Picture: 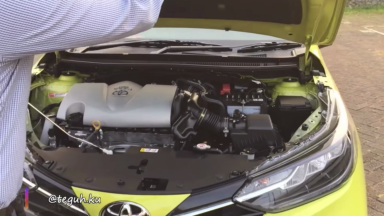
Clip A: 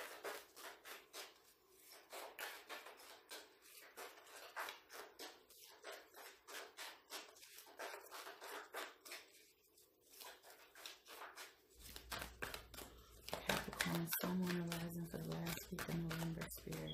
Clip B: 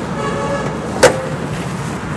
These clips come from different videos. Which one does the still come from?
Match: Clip B